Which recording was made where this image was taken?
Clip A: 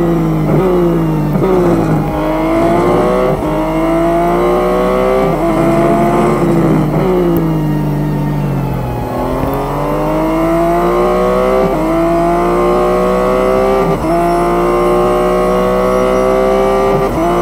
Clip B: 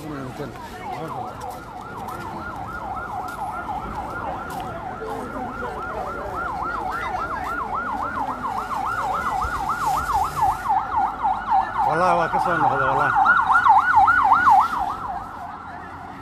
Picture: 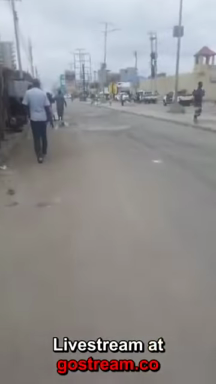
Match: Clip B